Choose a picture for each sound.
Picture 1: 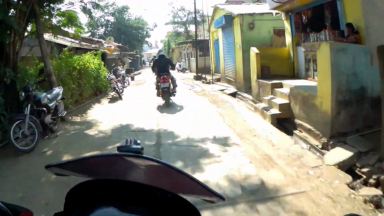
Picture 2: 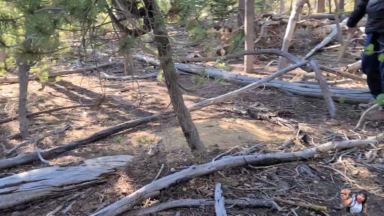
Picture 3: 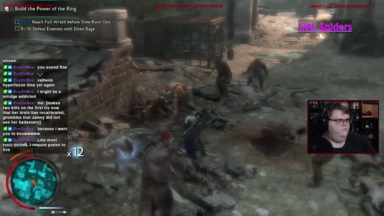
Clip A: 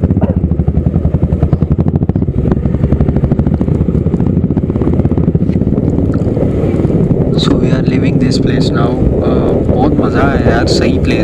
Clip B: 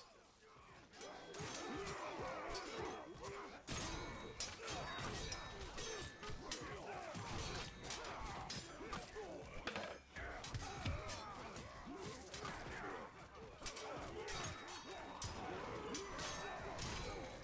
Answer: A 1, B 3